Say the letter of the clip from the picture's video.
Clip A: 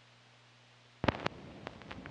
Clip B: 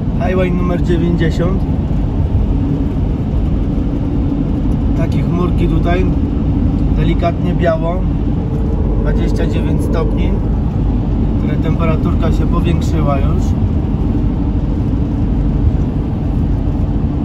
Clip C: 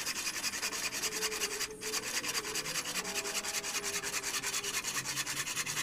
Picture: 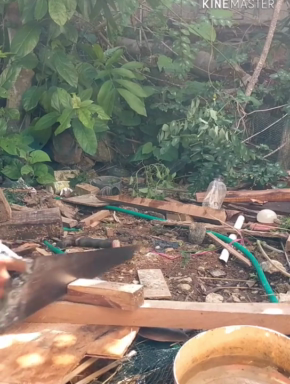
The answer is C